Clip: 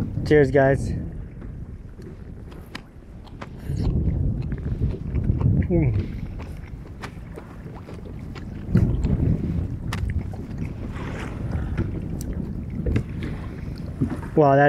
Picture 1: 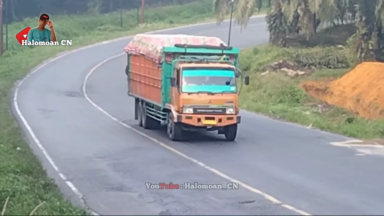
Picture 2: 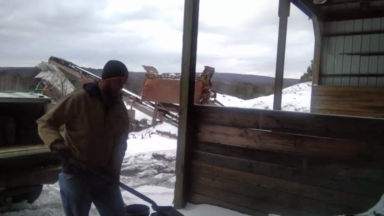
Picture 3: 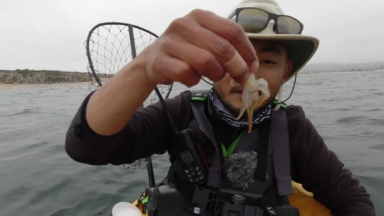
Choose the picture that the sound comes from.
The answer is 3